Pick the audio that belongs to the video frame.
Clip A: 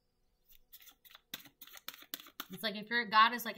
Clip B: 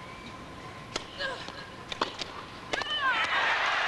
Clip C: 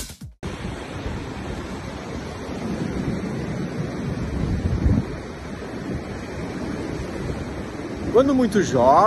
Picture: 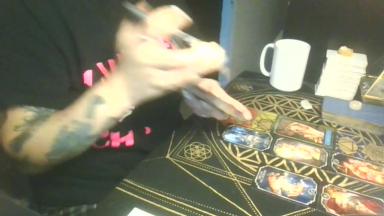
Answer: A